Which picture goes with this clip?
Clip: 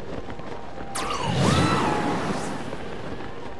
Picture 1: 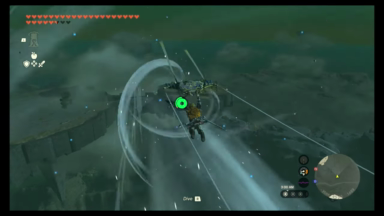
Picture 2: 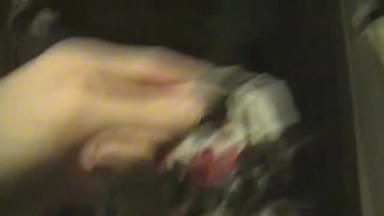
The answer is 1